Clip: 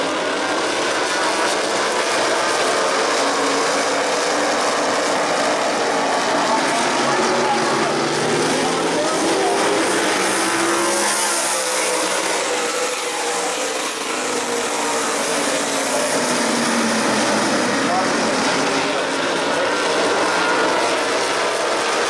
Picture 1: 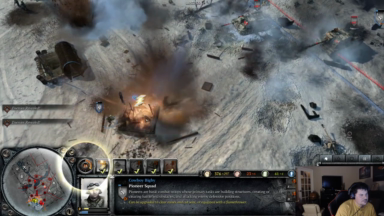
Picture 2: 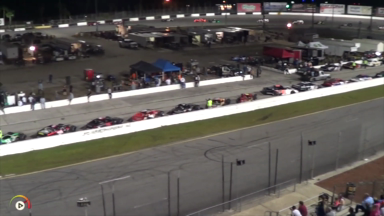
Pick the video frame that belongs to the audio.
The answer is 2